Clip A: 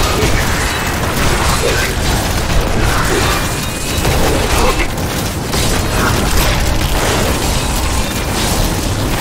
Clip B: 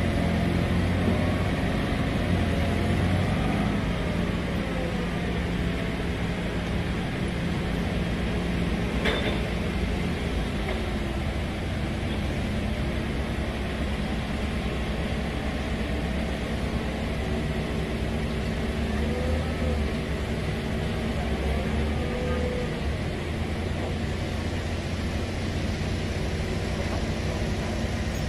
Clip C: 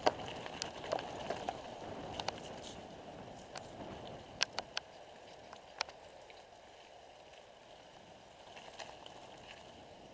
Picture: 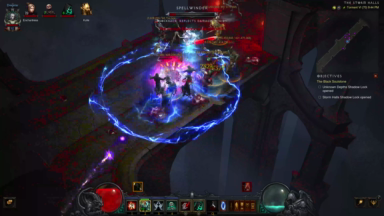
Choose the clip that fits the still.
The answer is A